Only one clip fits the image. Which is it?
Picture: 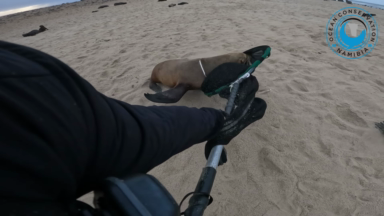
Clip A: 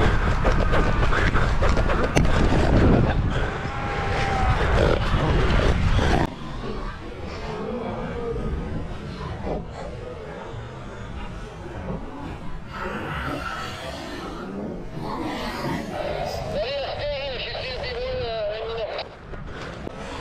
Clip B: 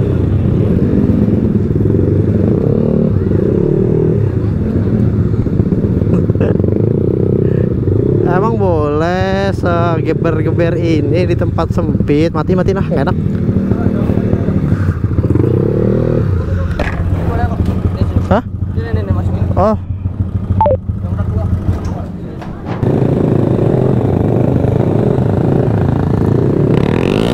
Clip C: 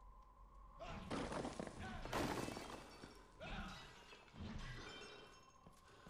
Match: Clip A